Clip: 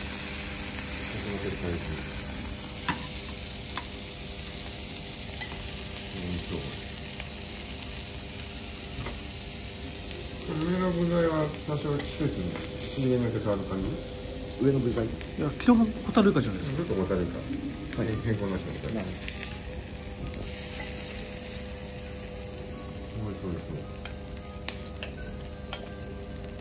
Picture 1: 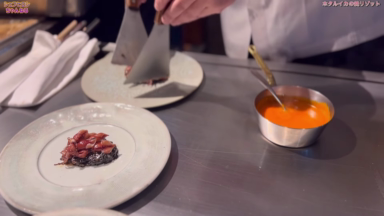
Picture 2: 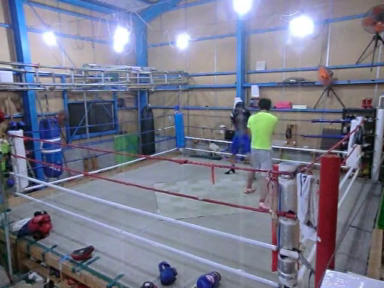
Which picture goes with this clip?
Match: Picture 1